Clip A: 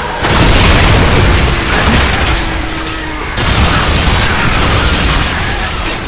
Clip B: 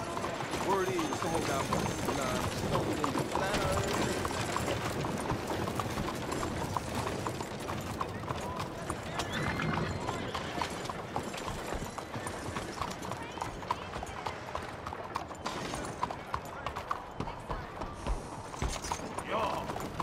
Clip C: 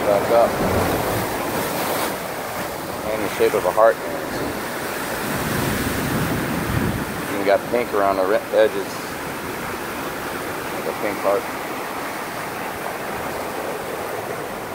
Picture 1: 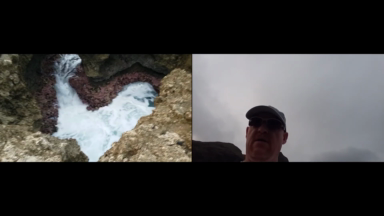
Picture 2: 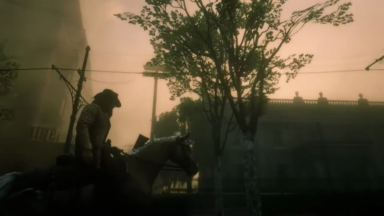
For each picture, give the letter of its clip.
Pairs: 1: C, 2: B